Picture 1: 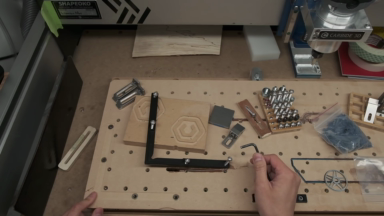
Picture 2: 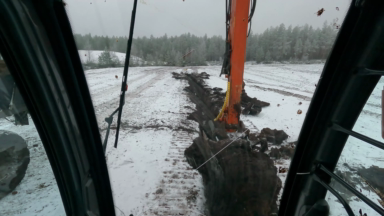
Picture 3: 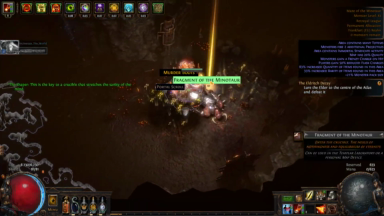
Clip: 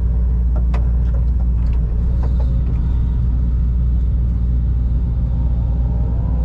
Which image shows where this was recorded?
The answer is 2